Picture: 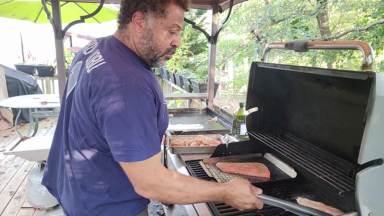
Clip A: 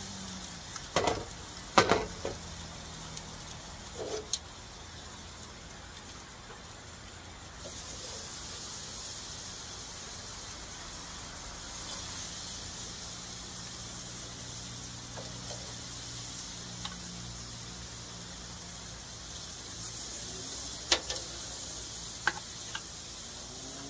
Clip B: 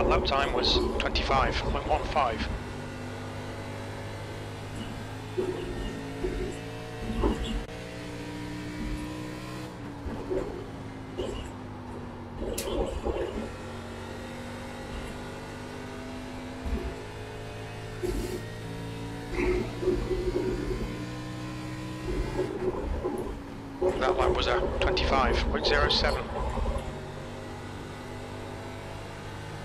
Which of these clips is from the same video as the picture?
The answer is A